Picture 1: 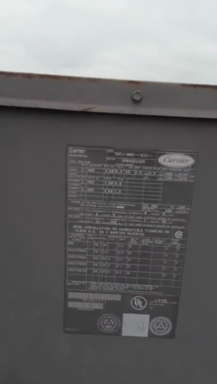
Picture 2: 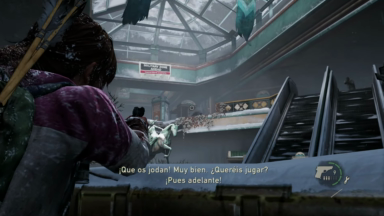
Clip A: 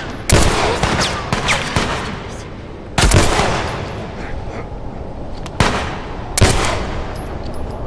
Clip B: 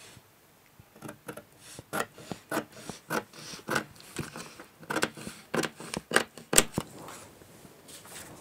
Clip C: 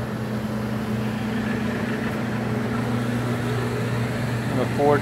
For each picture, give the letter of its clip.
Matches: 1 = C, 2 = A